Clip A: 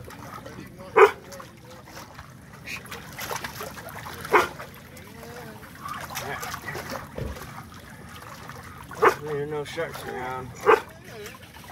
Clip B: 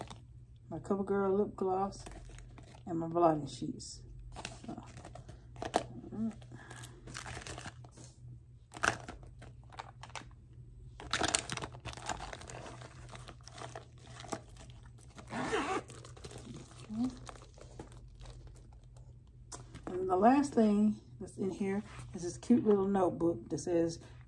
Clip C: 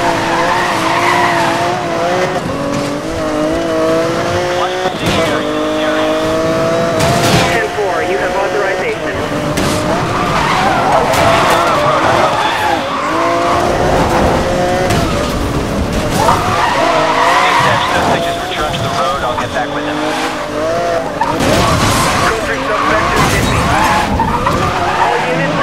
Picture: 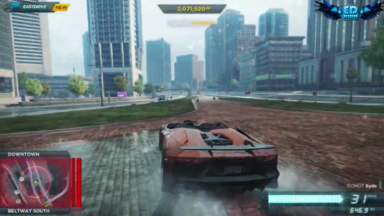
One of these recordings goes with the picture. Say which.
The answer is C